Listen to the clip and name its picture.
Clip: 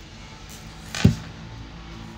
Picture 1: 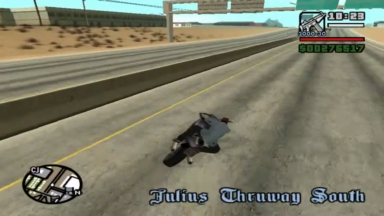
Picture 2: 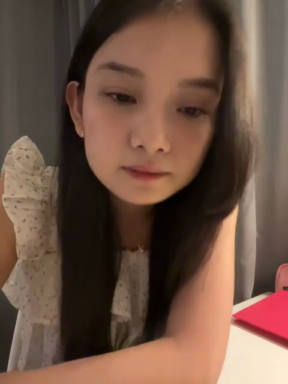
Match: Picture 2